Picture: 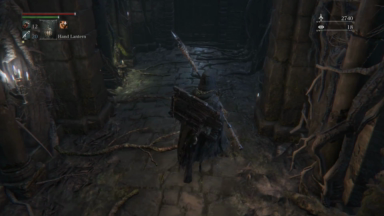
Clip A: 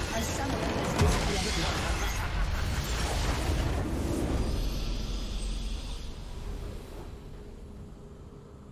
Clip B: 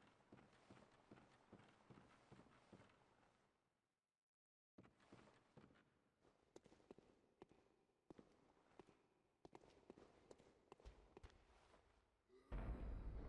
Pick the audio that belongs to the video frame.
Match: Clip B